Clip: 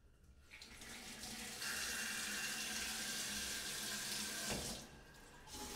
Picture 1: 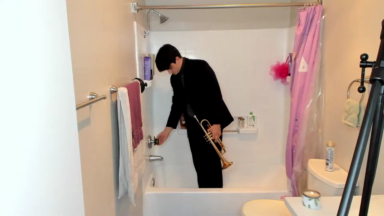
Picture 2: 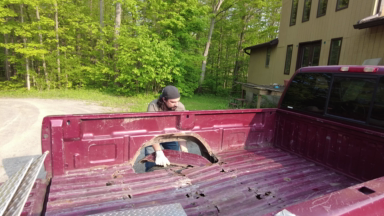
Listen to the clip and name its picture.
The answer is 1